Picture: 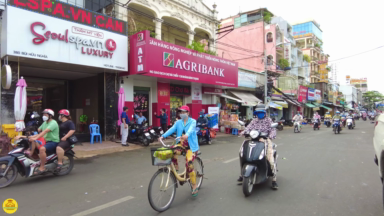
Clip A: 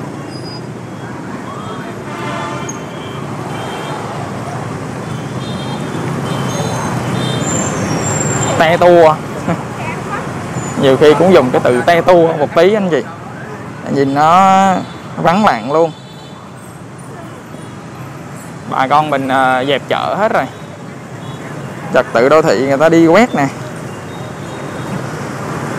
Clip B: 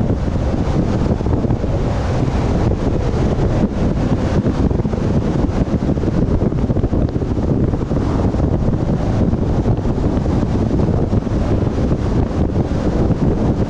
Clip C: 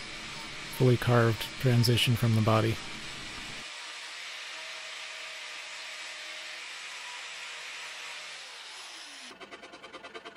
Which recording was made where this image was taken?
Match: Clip A